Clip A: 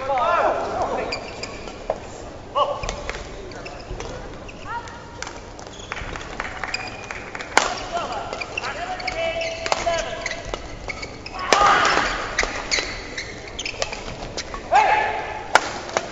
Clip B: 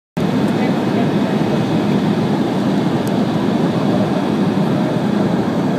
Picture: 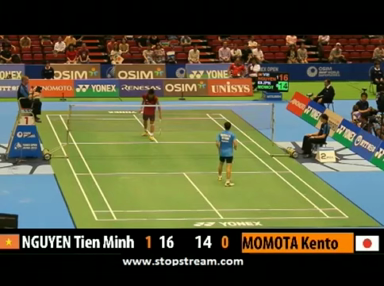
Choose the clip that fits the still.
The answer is A